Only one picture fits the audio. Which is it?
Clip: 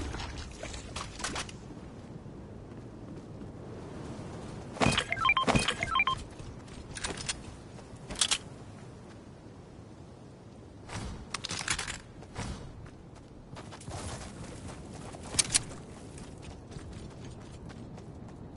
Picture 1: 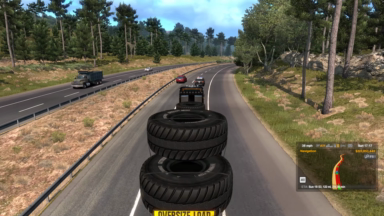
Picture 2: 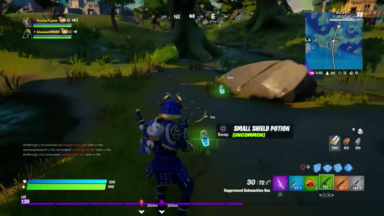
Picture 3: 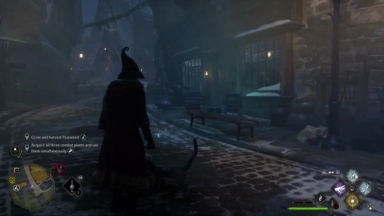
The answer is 2